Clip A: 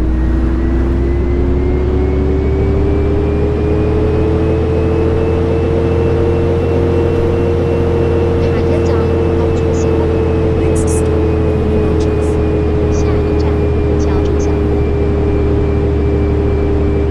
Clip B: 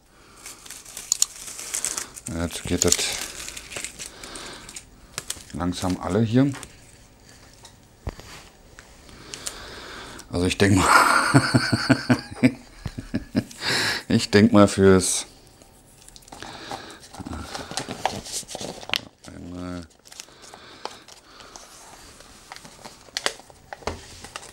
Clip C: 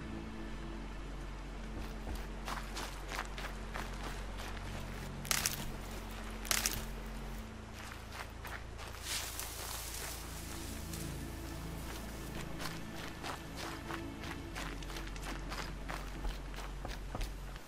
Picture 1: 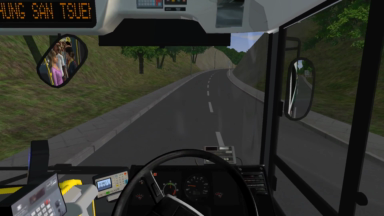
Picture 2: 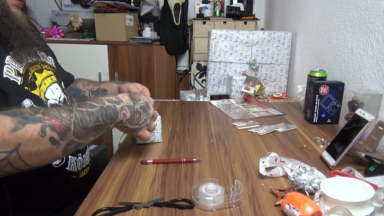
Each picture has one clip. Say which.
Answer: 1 A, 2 B